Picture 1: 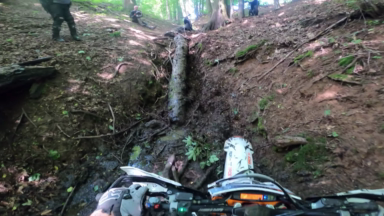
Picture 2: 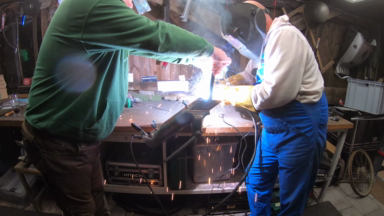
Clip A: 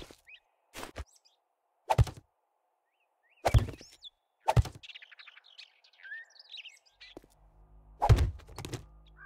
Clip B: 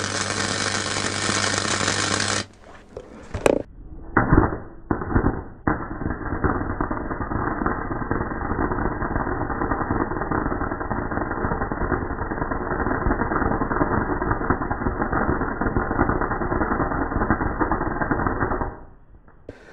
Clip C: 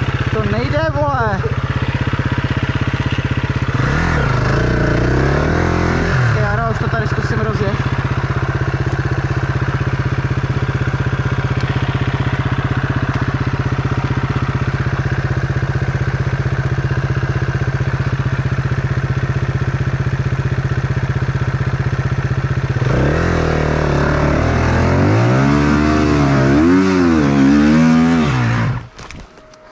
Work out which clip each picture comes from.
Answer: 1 C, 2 B